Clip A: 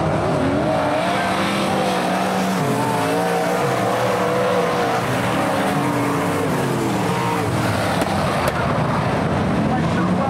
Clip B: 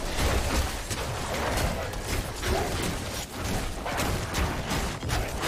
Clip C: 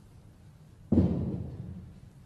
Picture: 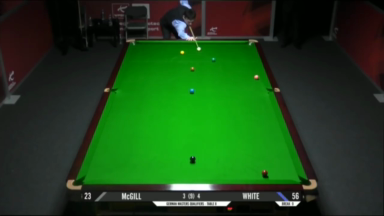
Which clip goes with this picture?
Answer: C